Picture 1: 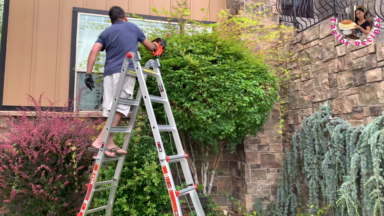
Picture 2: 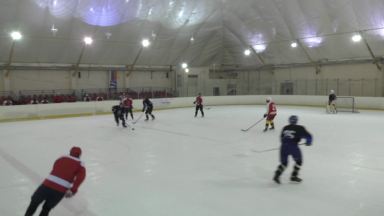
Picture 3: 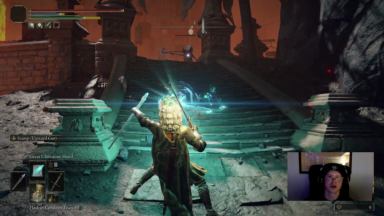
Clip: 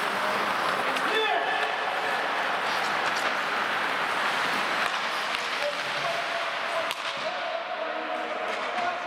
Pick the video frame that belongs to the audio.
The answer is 2